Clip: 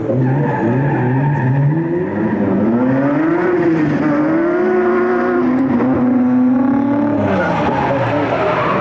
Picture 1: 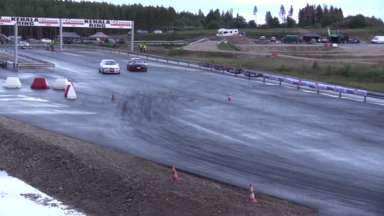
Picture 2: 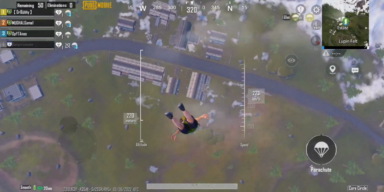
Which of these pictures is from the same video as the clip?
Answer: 1